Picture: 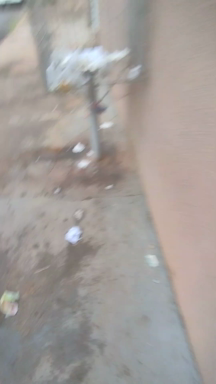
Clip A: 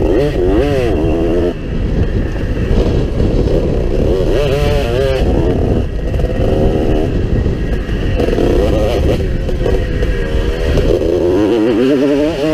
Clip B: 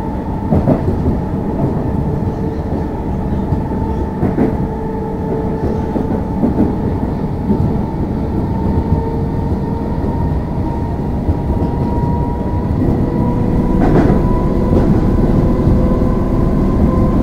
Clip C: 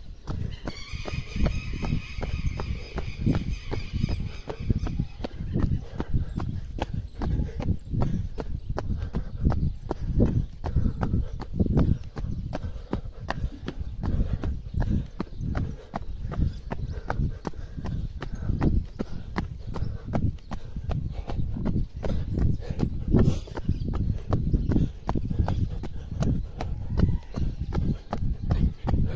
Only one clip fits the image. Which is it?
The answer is C